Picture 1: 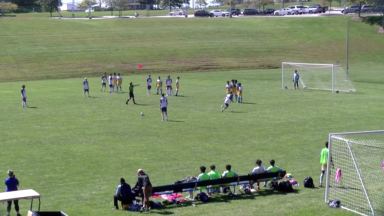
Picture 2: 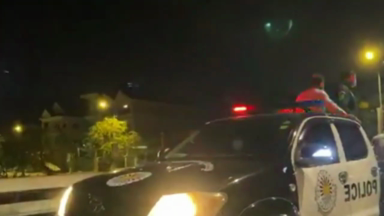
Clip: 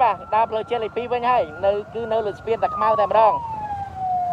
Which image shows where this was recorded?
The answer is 2